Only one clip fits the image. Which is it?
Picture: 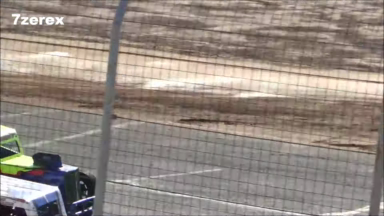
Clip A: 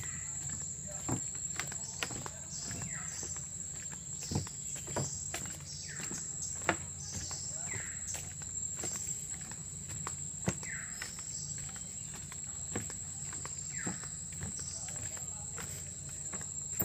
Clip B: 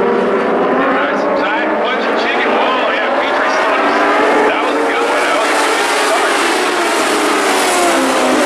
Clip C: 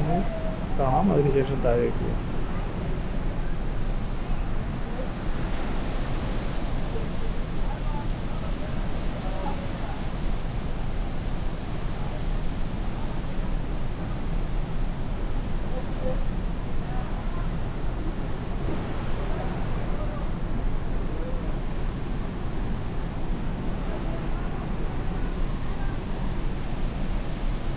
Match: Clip B